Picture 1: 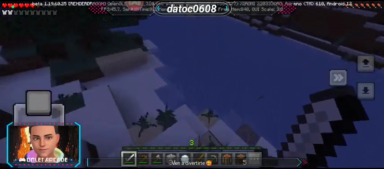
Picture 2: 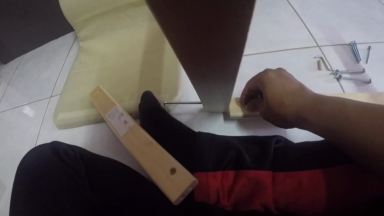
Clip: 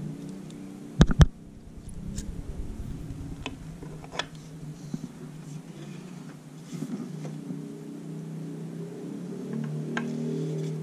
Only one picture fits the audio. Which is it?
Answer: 2